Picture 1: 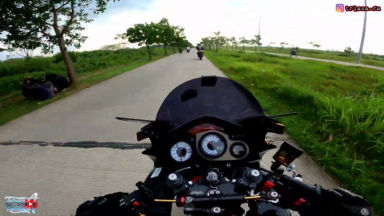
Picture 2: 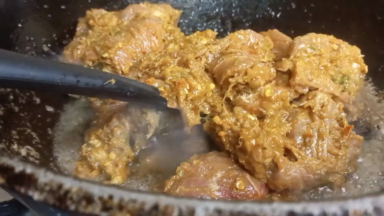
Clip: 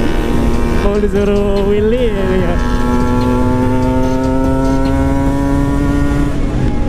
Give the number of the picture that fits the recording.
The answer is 1